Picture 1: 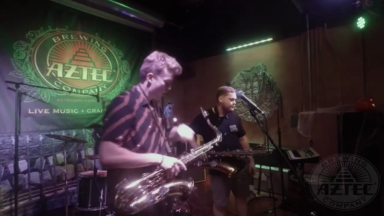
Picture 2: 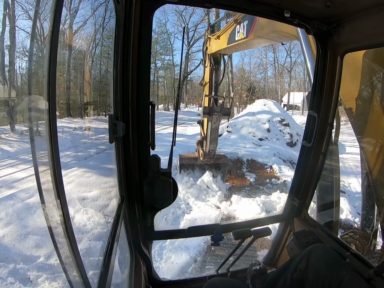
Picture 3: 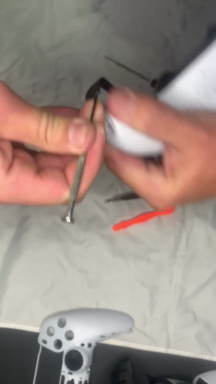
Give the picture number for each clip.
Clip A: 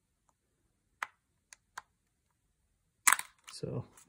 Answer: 3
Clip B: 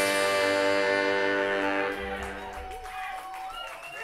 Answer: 1